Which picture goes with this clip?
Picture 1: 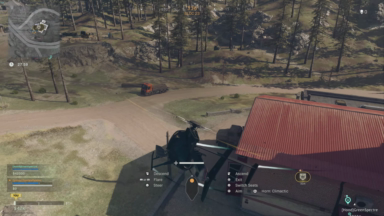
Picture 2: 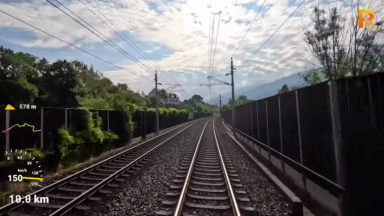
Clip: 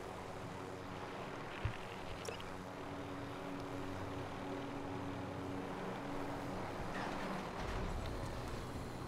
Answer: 1